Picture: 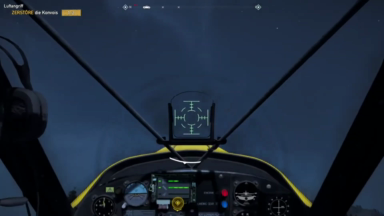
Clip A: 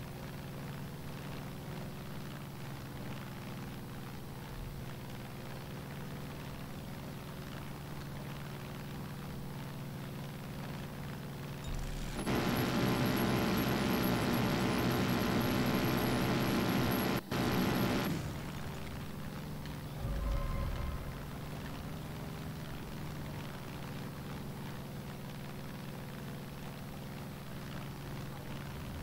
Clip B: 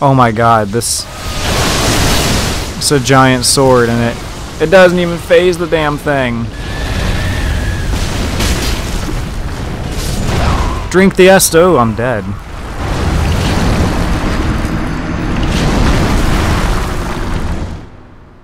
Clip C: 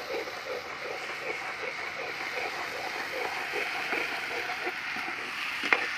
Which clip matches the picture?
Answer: A